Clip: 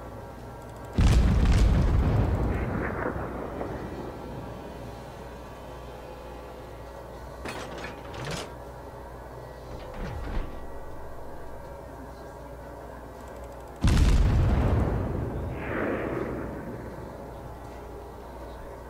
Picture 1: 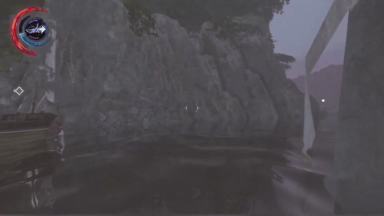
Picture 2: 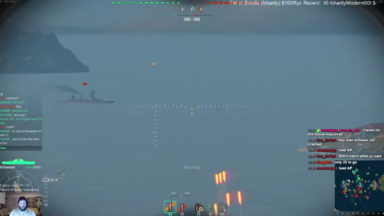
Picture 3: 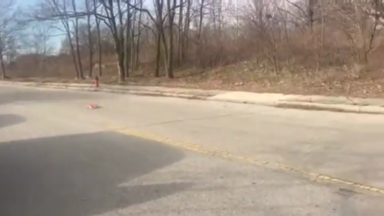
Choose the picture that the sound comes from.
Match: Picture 2